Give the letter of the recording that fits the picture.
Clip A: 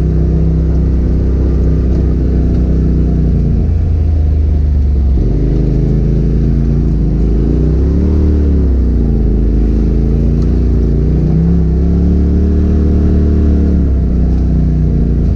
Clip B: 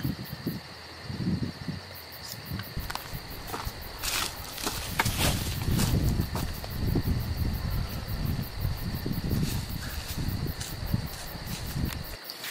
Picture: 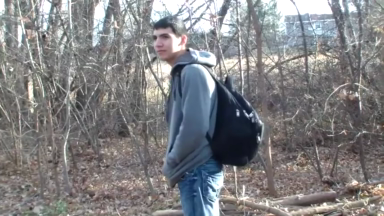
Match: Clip B